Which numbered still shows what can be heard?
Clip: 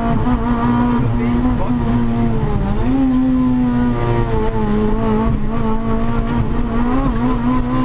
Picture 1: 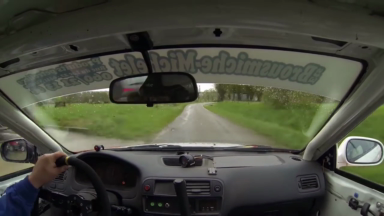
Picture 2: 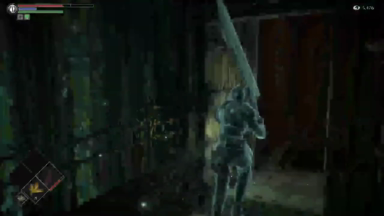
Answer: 1